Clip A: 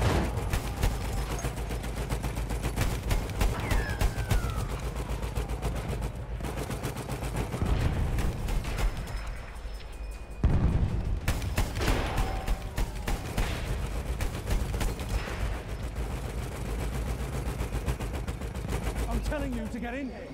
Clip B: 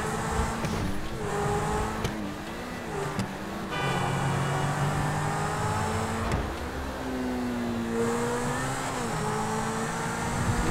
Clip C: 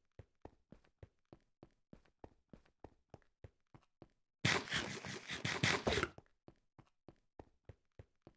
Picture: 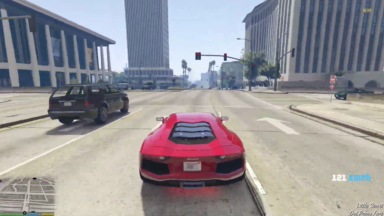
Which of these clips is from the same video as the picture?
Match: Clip B